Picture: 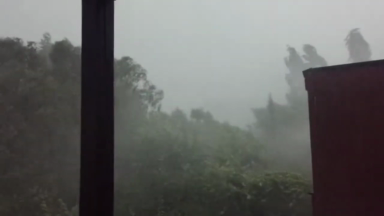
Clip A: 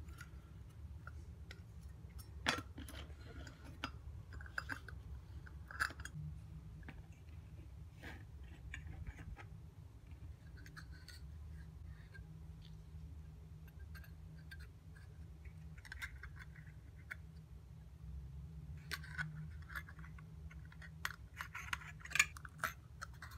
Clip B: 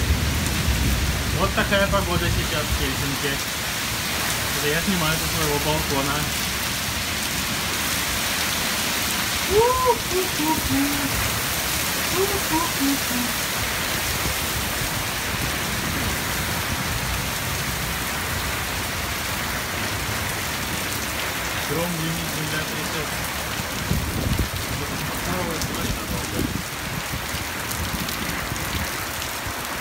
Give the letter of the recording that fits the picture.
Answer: B